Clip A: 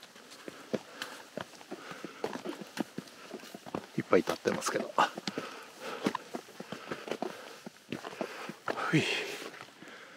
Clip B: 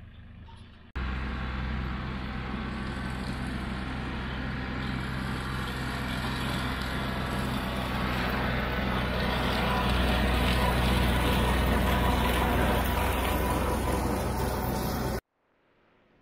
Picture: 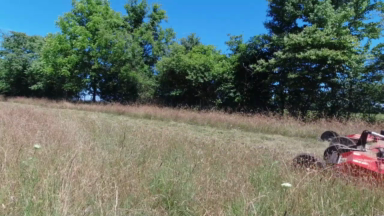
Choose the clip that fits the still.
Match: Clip B